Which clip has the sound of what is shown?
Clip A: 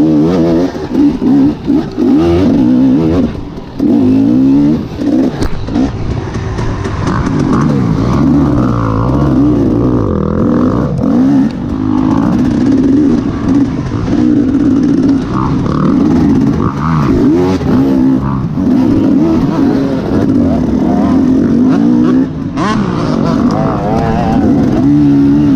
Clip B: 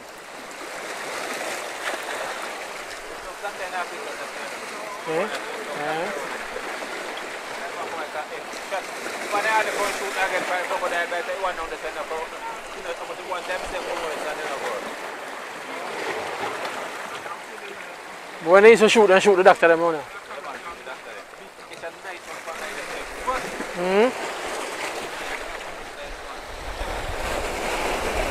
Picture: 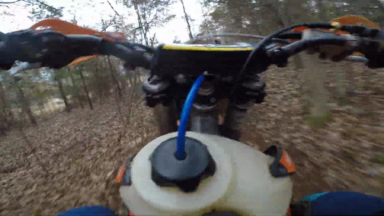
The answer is A